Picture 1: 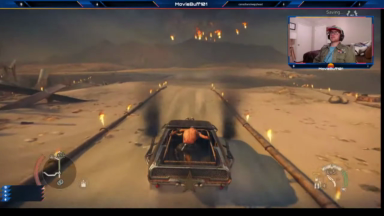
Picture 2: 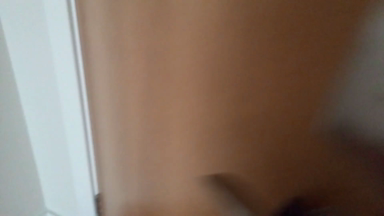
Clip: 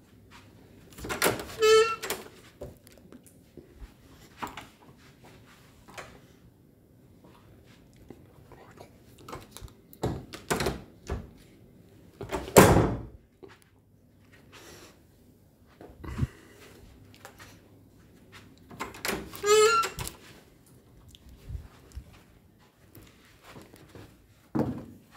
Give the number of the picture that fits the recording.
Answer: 2